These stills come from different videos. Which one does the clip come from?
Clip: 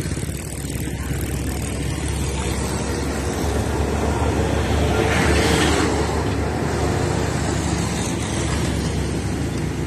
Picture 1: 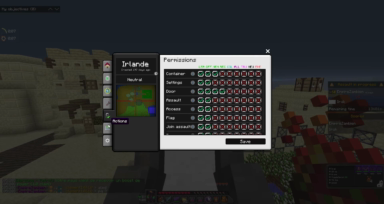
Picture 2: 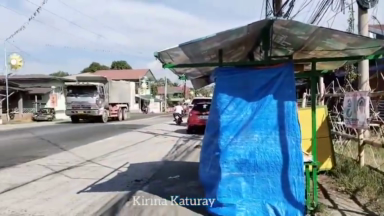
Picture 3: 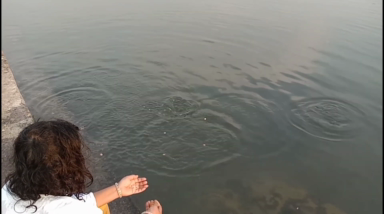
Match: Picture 2